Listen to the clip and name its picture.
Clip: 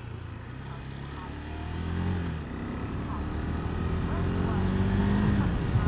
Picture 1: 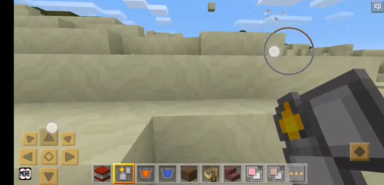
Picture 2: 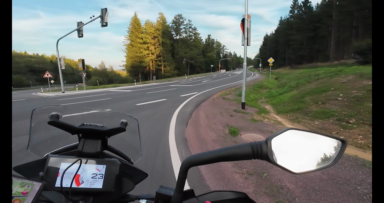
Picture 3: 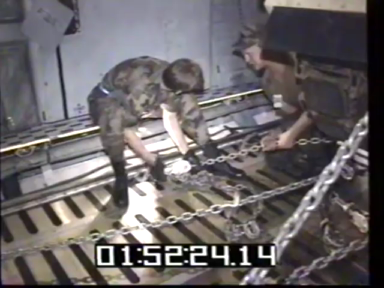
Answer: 2